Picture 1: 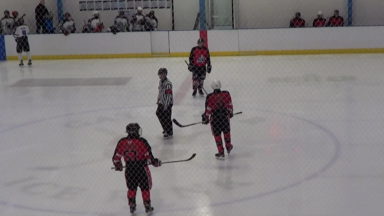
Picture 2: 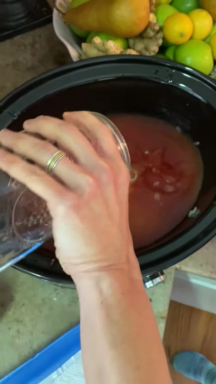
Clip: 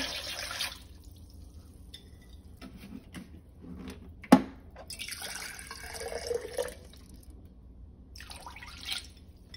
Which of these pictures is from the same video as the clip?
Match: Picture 2